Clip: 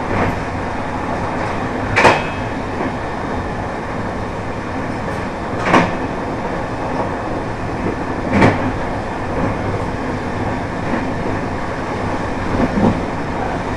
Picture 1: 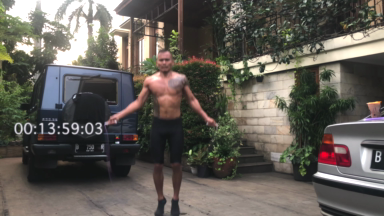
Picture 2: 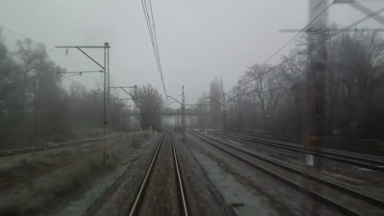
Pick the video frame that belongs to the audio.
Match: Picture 2